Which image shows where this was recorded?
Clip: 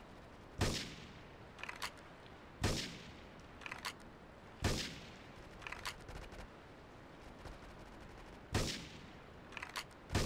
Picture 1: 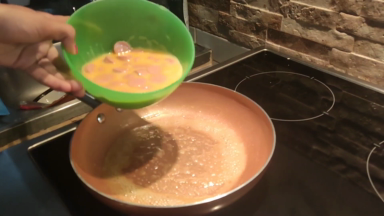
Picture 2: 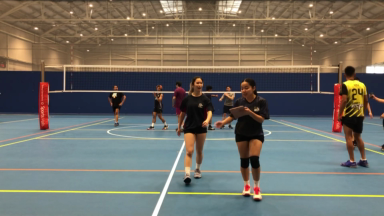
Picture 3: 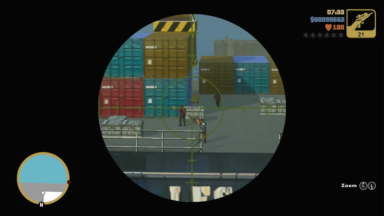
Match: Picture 3